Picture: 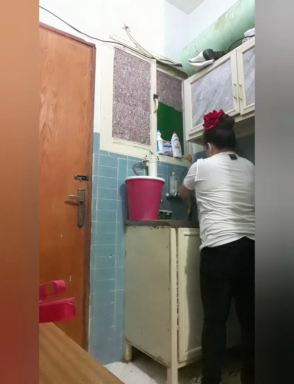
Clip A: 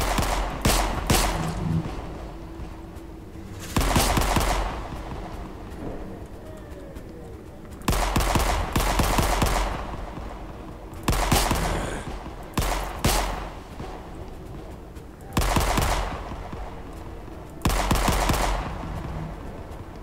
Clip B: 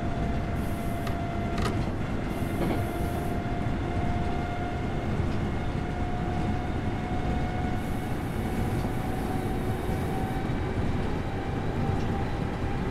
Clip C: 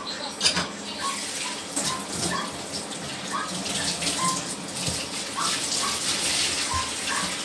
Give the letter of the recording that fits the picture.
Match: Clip C